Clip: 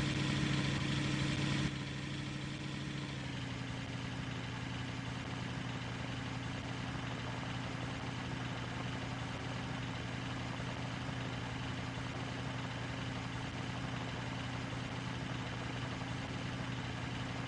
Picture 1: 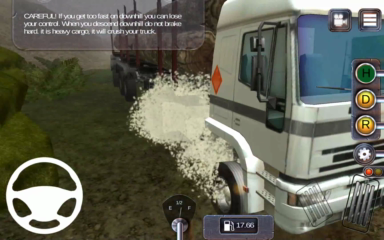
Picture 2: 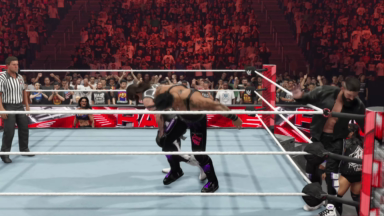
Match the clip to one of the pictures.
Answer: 1